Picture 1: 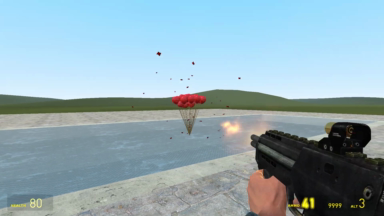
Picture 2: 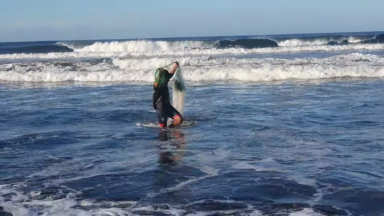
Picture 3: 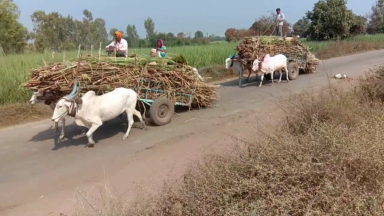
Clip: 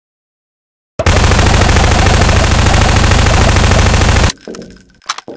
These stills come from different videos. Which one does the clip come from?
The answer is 1